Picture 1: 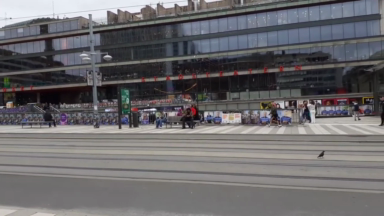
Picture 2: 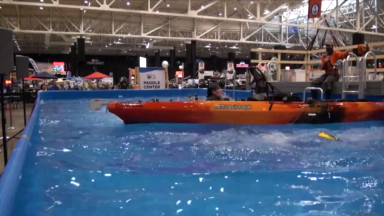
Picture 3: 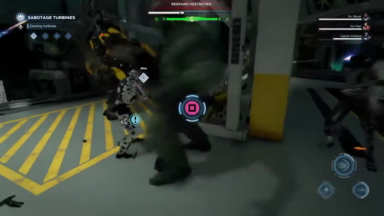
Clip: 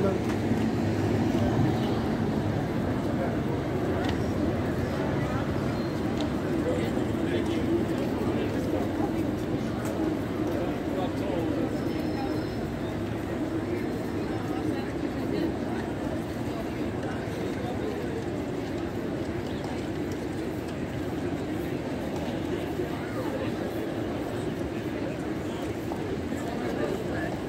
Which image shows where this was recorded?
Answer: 1